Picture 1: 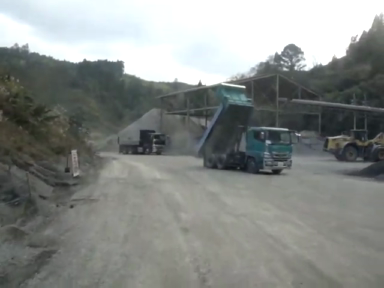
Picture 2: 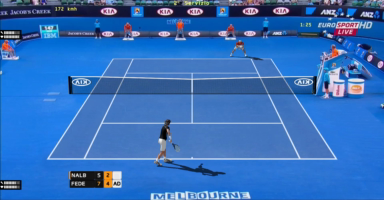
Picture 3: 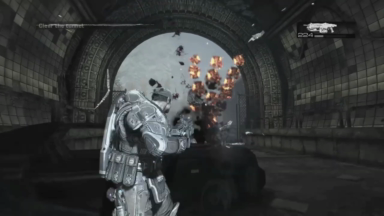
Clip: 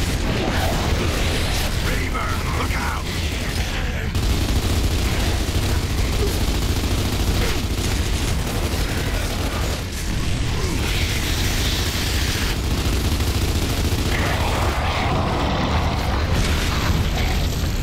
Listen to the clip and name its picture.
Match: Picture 3